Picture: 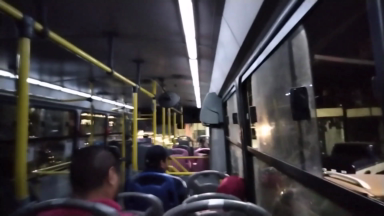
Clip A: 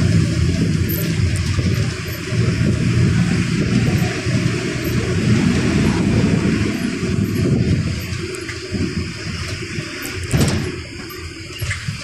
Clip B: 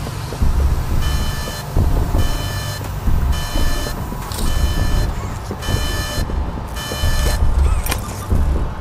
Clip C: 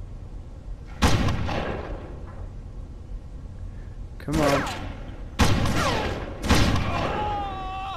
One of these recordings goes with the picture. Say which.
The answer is A